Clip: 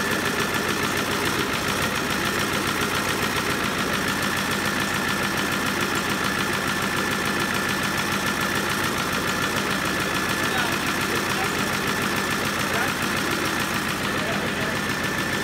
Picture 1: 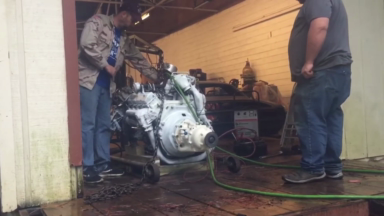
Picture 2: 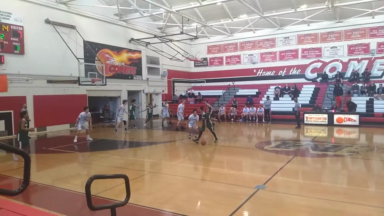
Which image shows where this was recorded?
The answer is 1